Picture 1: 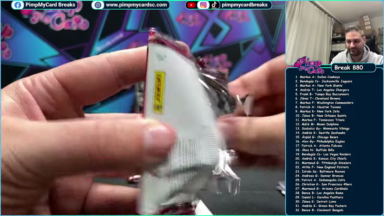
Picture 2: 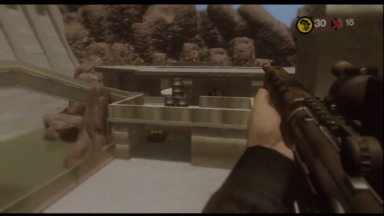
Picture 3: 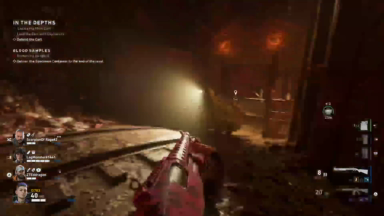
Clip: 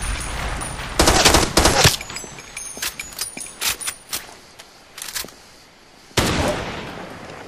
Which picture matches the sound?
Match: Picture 2